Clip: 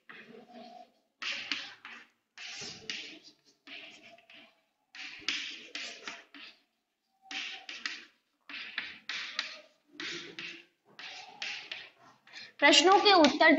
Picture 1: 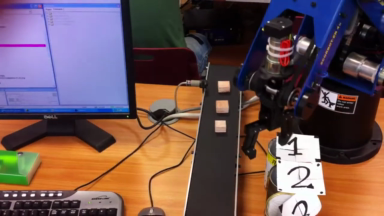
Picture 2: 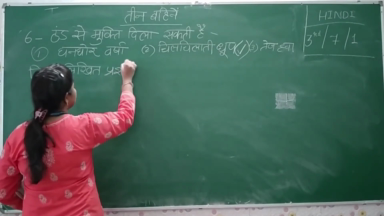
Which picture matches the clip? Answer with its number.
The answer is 2